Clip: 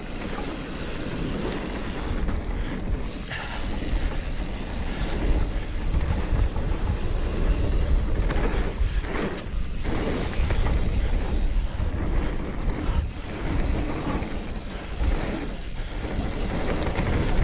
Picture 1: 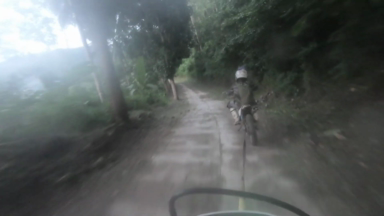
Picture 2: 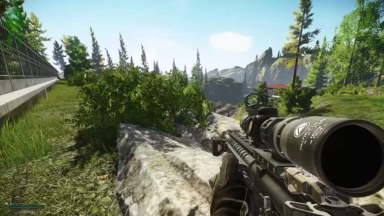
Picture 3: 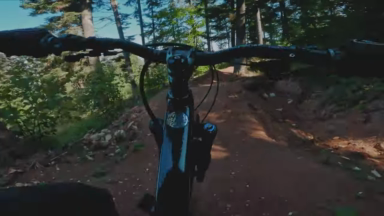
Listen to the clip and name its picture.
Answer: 3